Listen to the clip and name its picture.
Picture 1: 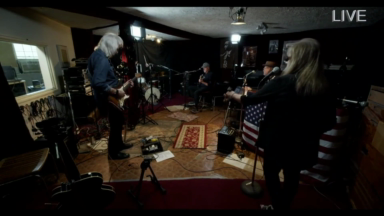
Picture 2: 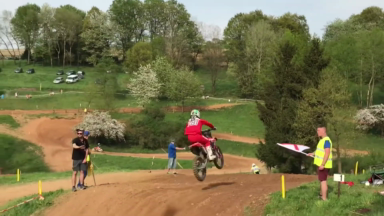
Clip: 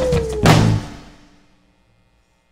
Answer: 1